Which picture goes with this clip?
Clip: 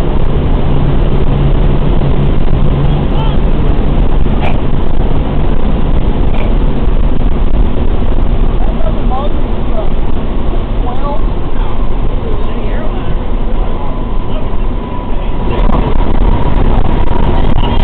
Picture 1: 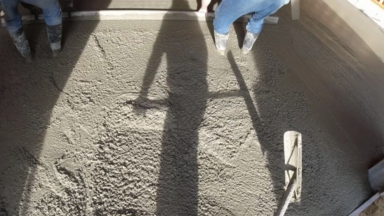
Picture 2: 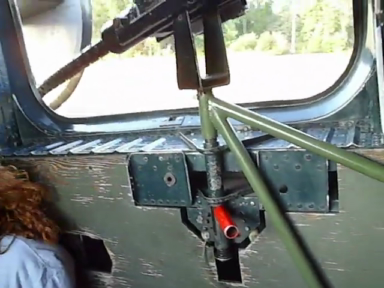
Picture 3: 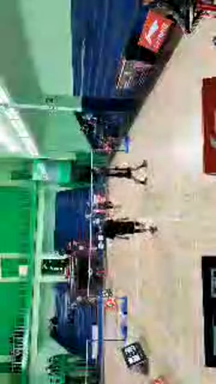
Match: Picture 2